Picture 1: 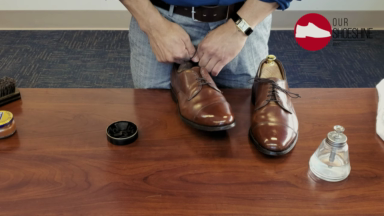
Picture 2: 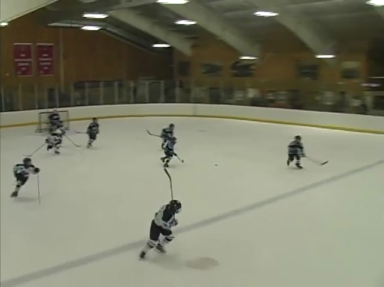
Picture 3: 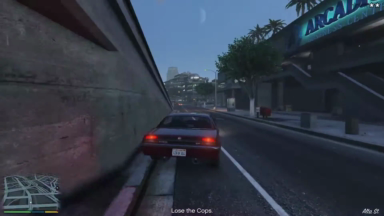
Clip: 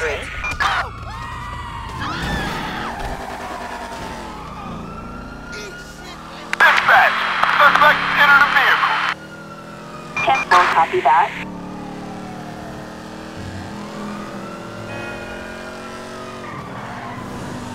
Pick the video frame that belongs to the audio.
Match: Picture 3